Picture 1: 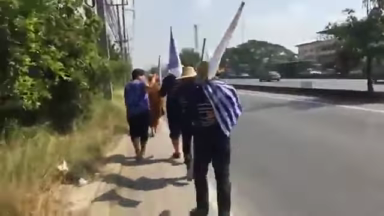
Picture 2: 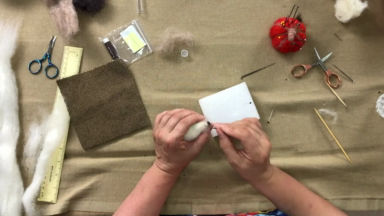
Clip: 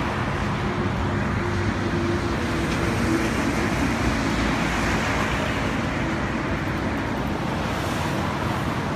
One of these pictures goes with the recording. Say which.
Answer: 1